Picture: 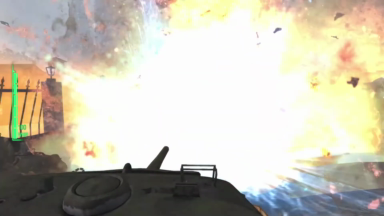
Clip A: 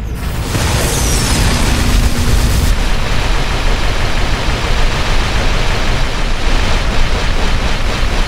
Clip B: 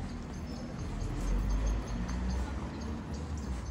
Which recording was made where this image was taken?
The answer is A